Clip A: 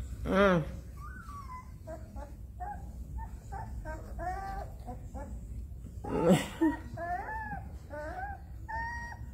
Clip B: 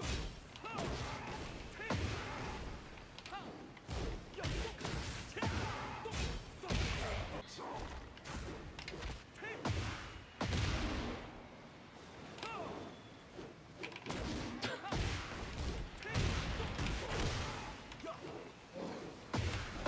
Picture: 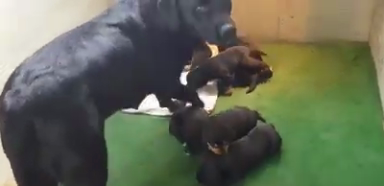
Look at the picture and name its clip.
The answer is A